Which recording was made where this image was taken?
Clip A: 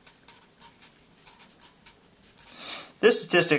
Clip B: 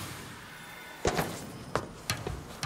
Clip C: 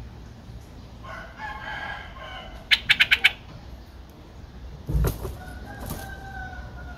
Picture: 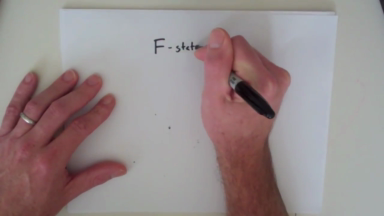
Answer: A